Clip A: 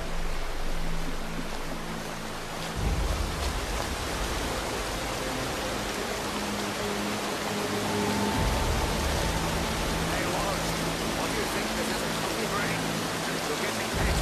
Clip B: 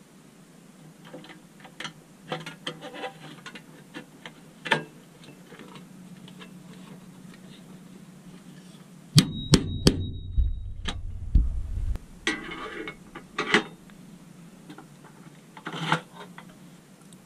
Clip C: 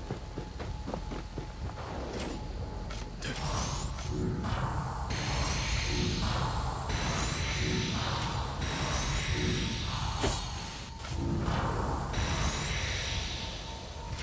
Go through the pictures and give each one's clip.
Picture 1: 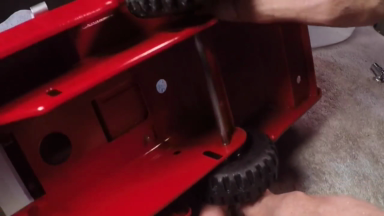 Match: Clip B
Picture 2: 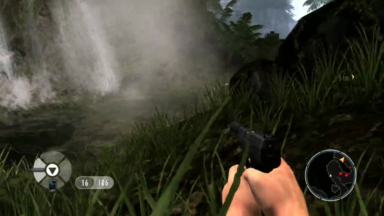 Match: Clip A